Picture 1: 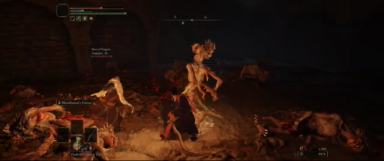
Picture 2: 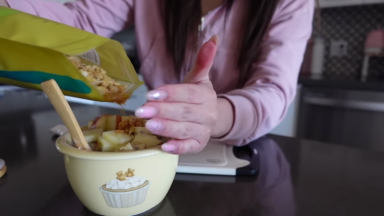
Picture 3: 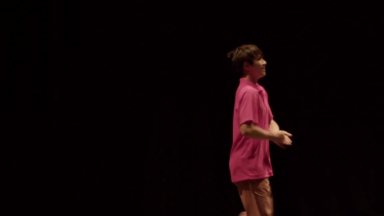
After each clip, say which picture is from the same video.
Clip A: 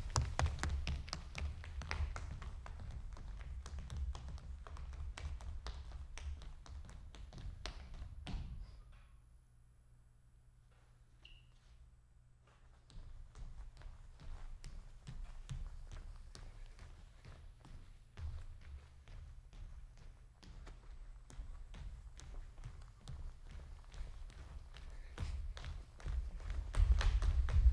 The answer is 3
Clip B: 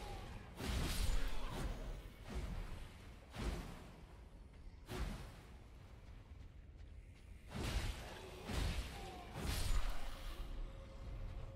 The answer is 1